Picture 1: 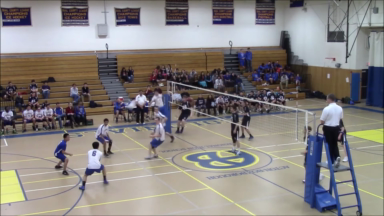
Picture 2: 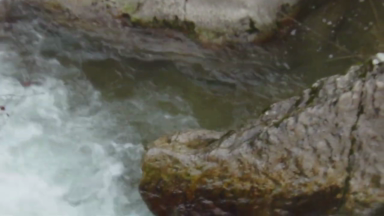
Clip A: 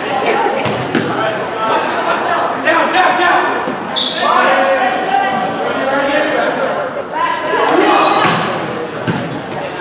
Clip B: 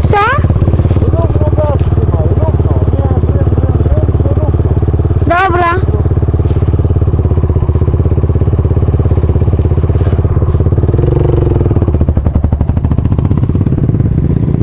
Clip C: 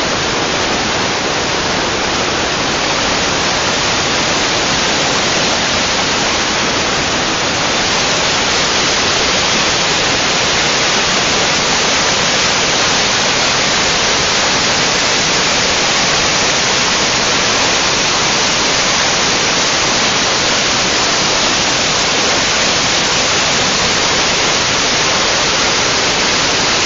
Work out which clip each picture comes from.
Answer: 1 A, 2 C